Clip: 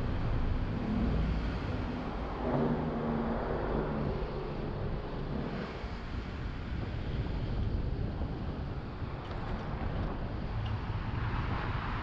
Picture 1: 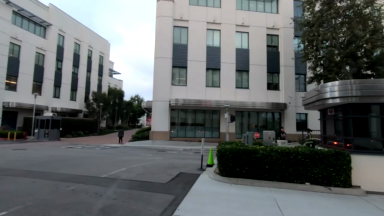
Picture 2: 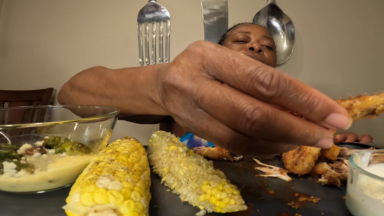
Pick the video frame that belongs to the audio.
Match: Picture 1